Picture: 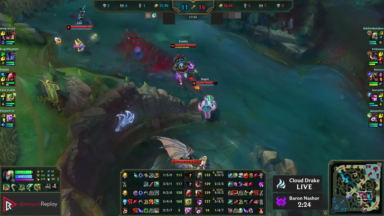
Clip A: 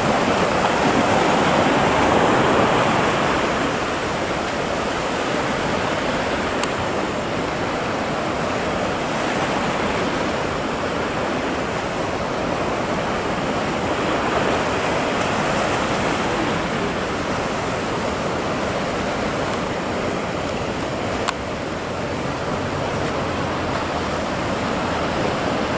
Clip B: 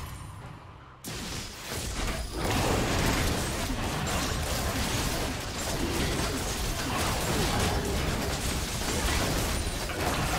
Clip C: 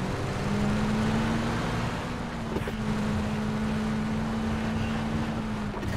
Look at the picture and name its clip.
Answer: B